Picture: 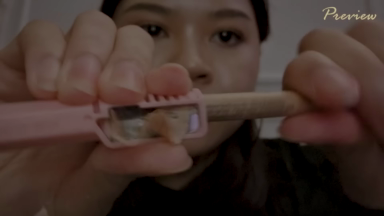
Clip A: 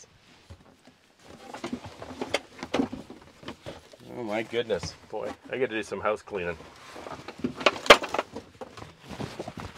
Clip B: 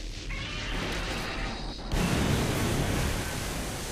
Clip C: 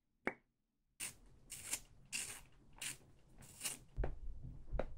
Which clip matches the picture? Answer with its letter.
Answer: C